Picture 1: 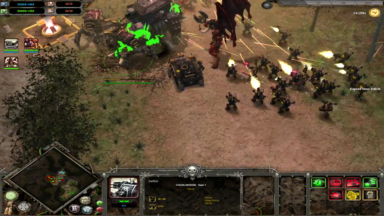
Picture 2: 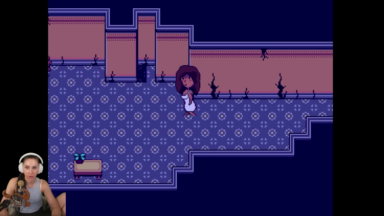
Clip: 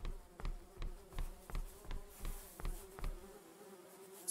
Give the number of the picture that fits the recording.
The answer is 2